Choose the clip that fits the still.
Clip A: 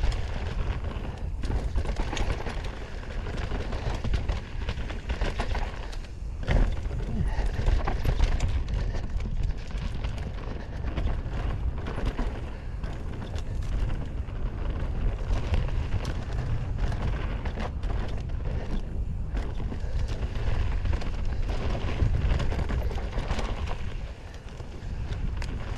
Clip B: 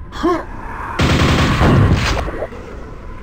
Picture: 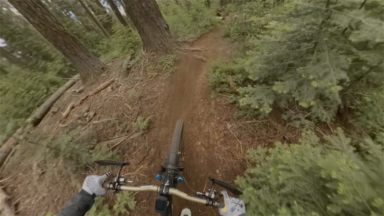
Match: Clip A